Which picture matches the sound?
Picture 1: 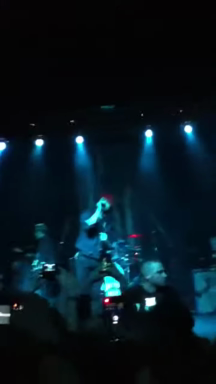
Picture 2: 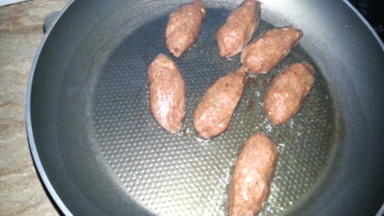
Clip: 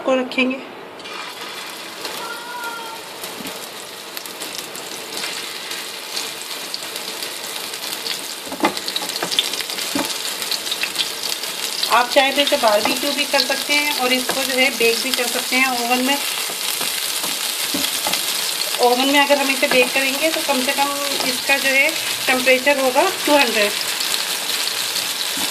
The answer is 2